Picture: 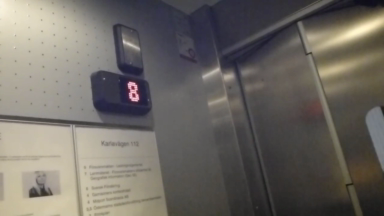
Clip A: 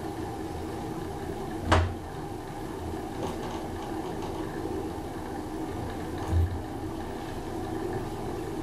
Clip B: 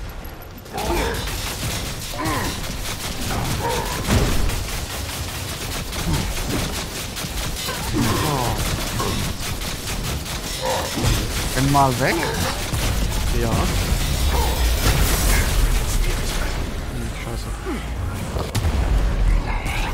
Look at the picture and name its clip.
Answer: A